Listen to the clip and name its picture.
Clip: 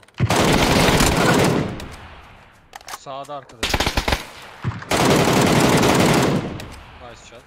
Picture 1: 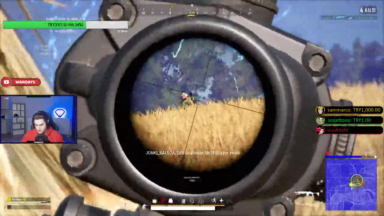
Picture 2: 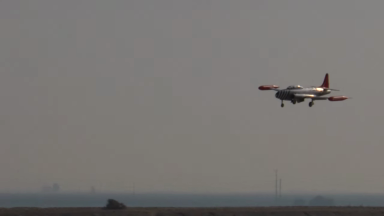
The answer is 1